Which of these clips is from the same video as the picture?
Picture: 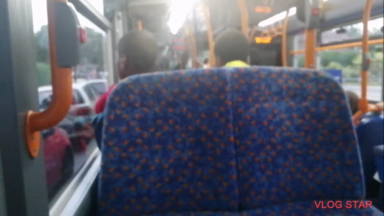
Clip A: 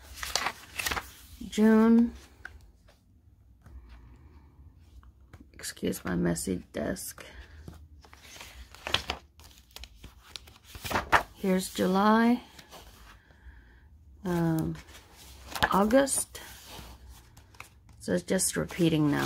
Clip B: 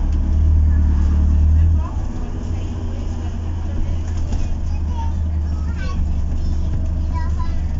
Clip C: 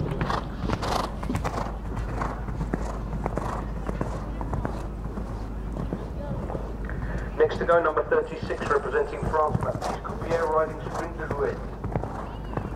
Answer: B